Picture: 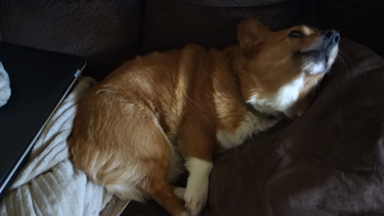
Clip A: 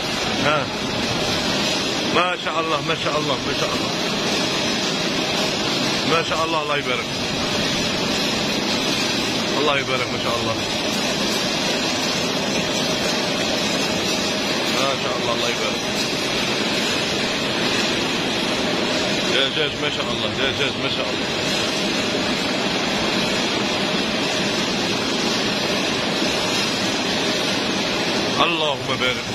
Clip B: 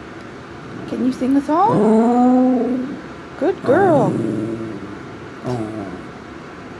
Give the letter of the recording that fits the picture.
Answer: B